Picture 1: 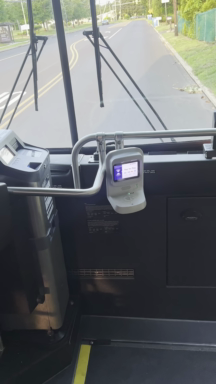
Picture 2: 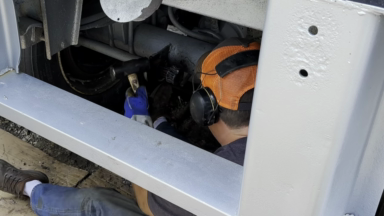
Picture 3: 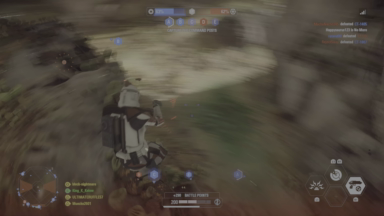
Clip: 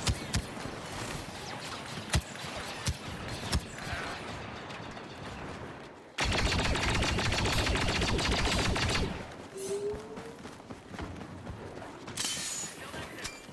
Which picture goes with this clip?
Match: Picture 3